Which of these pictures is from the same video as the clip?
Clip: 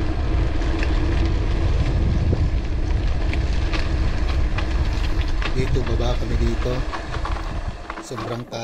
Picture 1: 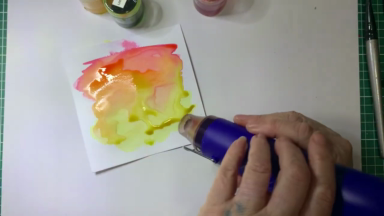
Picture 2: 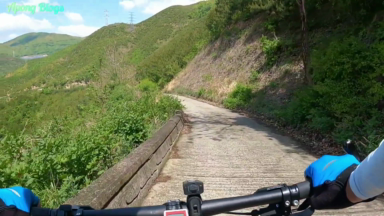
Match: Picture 2